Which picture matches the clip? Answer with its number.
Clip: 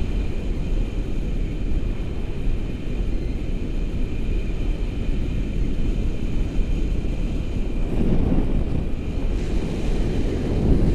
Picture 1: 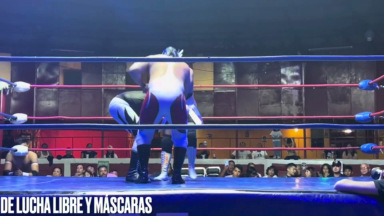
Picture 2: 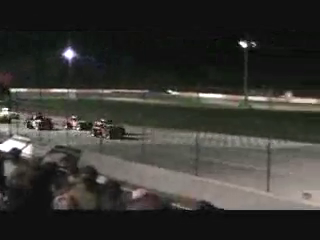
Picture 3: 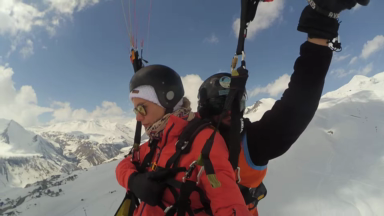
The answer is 3